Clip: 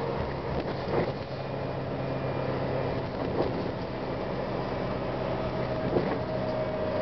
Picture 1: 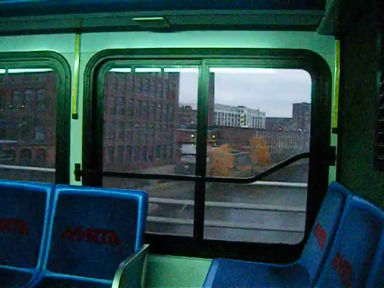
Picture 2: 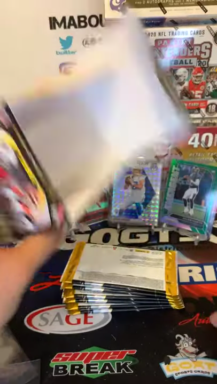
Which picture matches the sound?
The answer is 1